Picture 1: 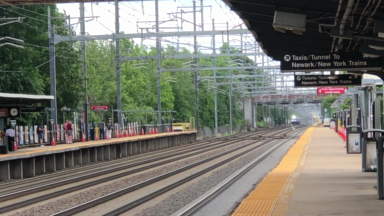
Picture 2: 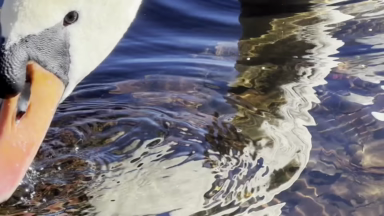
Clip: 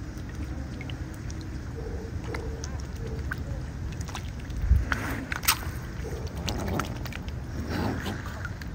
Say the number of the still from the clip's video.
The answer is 2